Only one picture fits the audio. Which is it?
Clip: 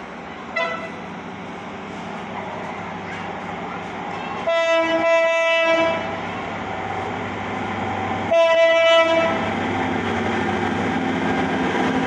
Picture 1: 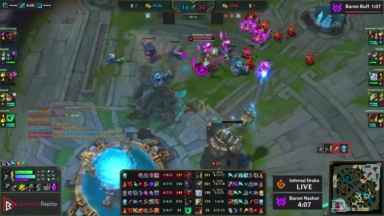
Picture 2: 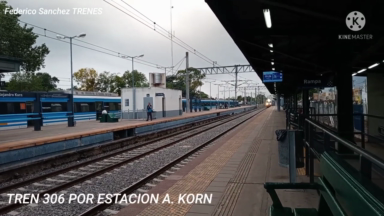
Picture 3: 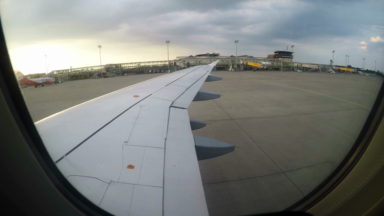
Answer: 2